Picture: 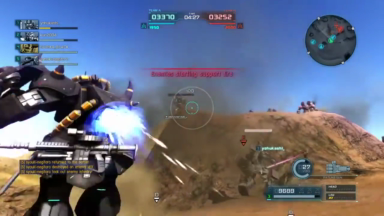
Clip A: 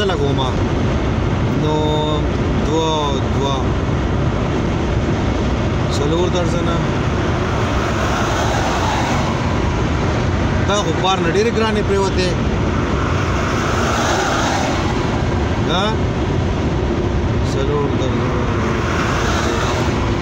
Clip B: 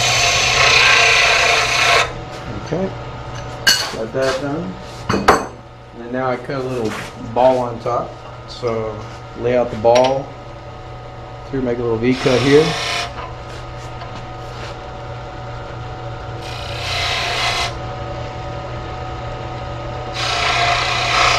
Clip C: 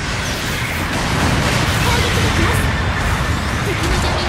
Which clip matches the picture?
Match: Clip C